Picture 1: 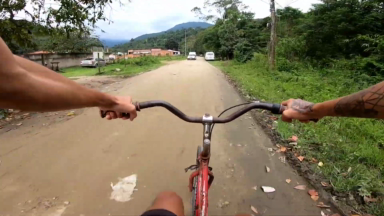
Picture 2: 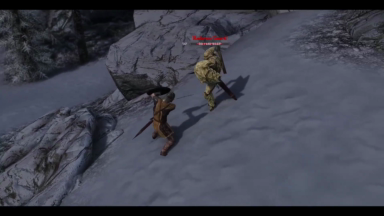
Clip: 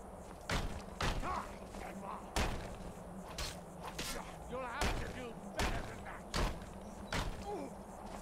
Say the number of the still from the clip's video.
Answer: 2